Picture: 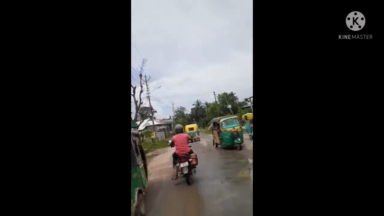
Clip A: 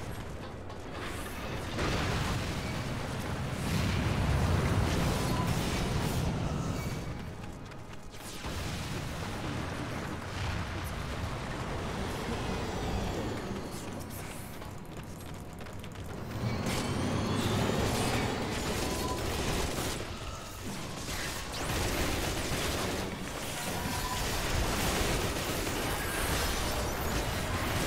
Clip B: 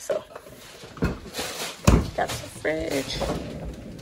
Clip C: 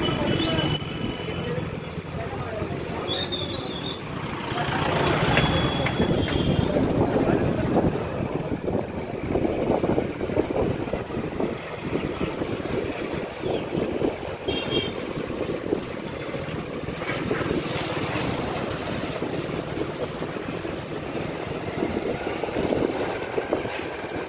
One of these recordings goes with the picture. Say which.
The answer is C